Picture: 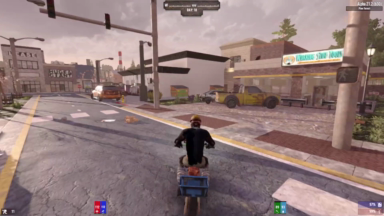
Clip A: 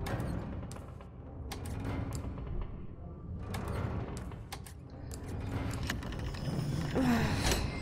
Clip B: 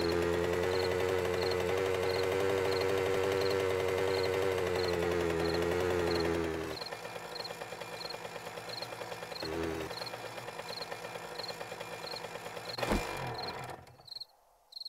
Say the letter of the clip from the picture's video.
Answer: B